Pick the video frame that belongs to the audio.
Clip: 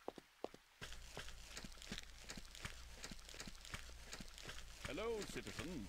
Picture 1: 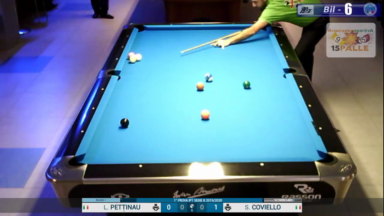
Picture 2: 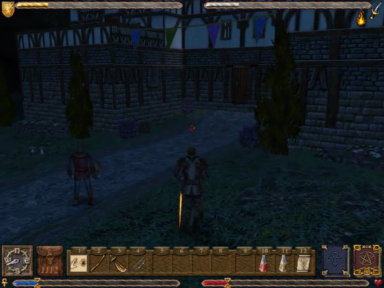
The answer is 2